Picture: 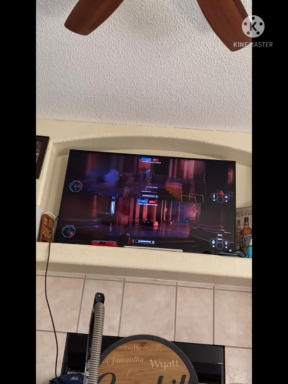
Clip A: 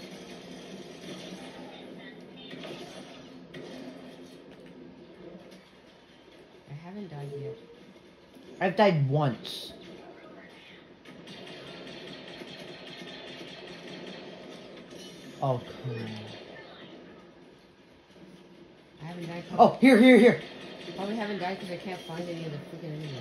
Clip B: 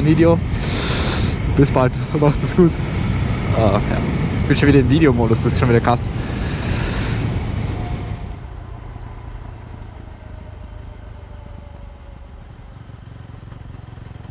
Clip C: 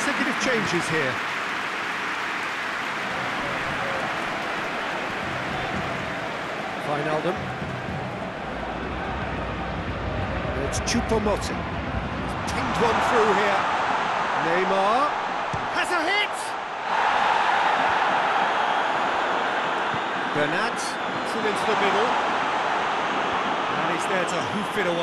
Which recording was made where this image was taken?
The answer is A